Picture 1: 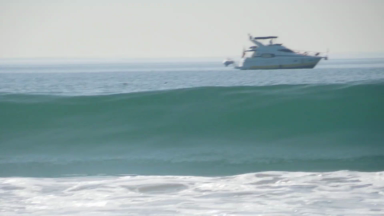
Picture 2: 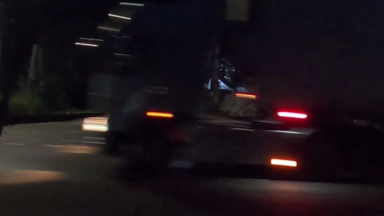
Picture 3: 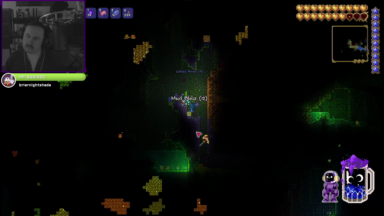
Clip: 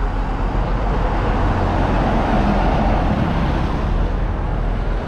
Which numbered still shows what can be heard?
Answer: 2